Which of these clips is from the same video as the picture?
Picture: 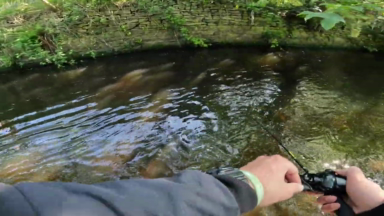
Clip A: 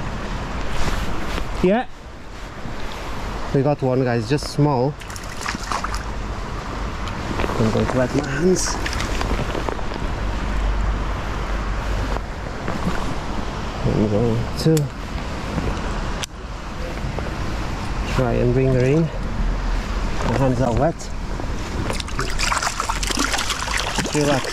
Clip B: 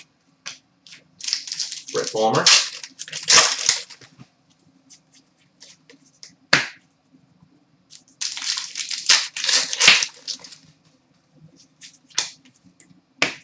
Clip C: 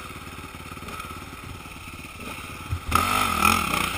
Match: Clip A